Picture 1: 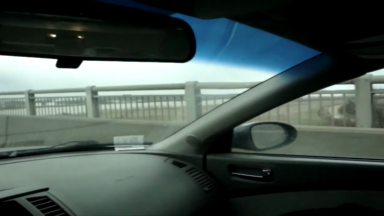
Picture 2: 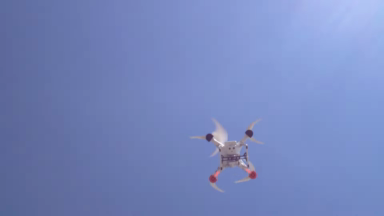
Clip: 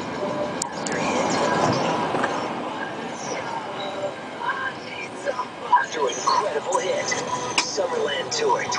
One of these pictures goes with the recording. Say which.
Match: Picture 1